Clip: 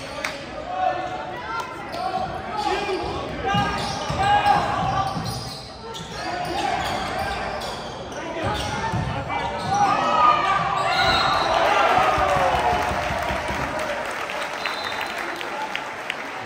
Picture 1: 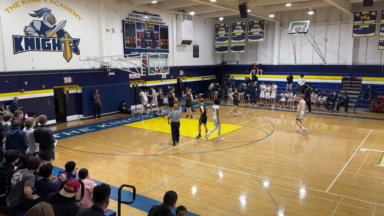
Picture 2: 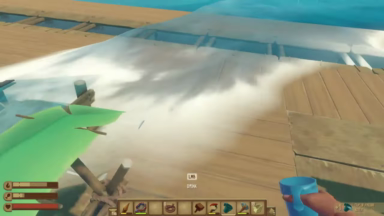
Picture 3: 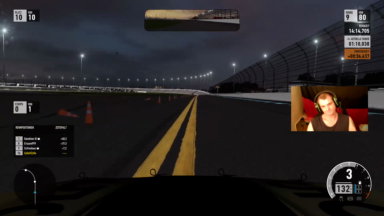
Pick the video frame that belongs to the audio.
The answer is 1